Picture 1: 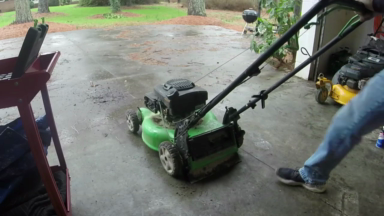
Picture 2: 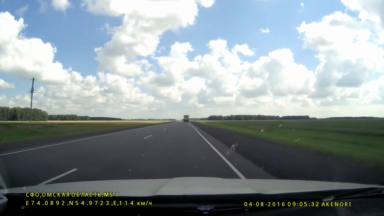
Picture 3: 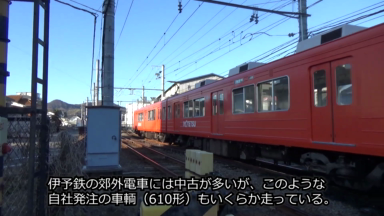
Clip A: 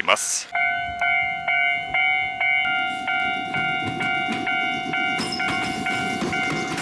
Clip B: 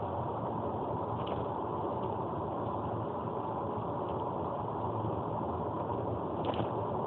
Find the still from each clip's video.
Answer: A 3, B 2